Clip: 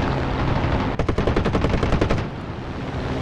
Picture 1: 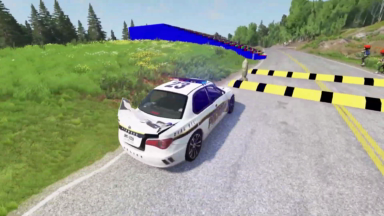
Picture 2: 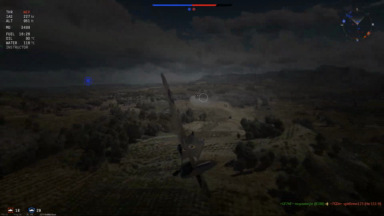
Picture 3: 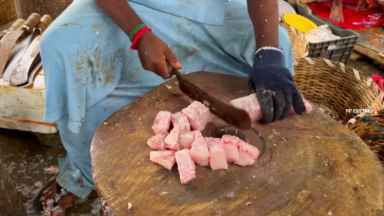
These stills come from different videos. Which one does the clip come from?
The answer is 2